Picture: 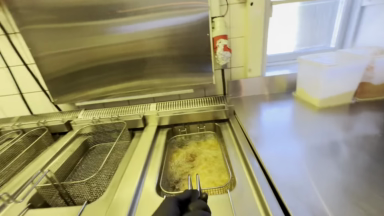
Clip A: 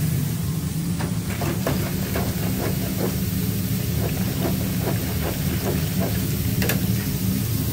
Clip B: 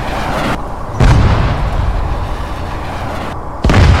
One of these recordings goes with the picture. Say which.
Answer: A